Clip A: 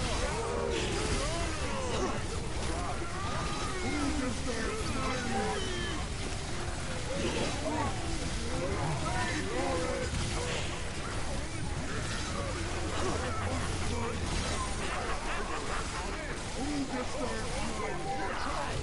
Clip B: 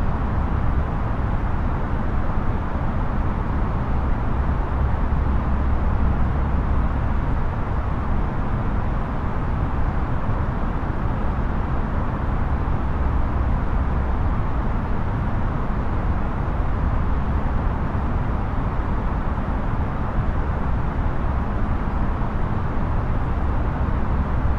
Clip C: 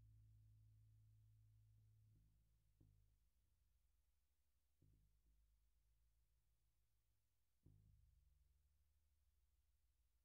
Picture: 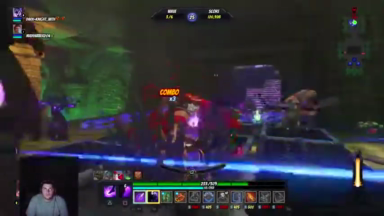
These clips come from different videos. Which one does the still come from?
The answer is A